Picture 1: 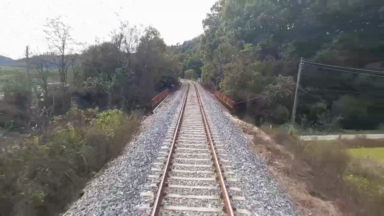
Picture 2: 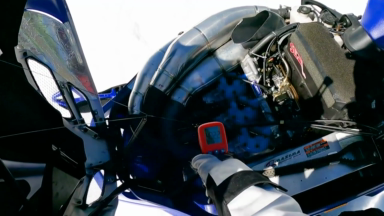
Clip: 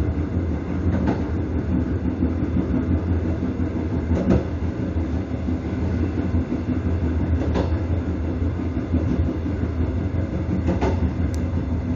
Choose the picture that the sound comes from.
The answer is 1